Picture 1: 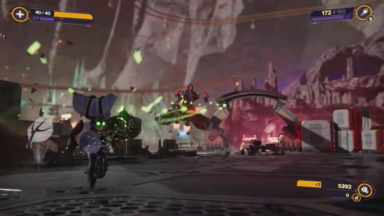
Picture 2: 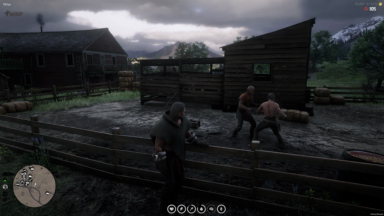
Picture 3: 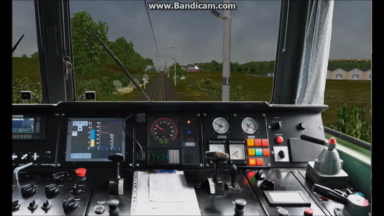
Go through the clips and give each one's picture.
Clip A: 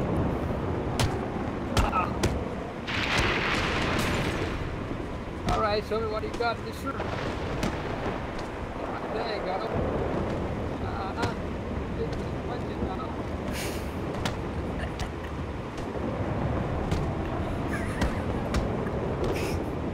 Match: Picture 2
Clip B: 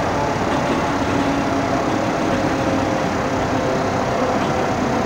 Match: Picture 3